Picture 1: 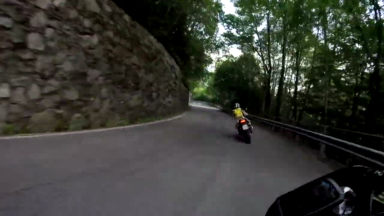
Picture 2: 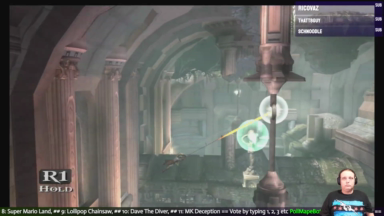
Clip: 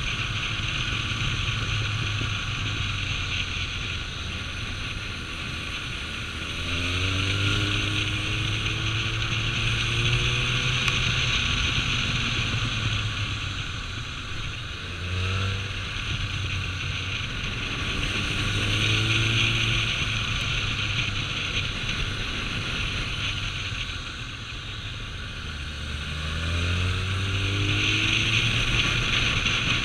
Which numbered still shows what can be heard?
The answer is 1